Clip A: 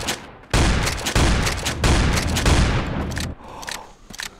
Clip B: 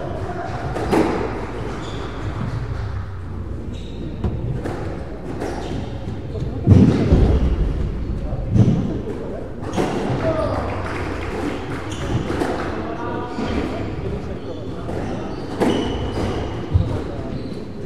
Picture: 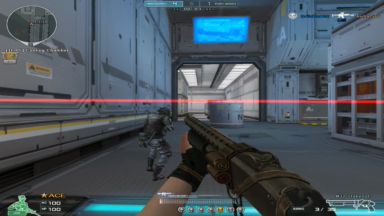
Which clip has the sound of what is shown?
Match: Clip A